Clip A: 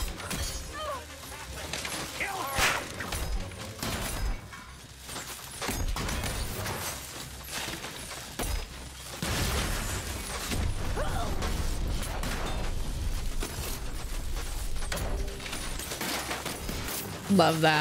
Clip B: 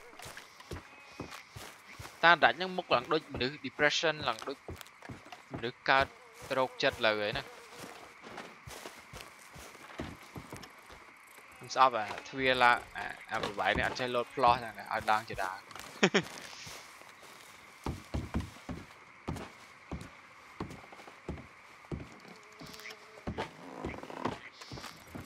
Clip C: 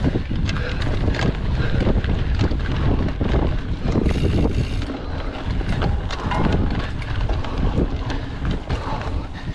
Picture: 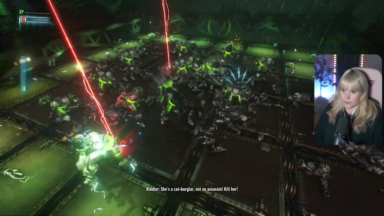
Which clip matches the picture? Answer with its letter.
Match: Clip A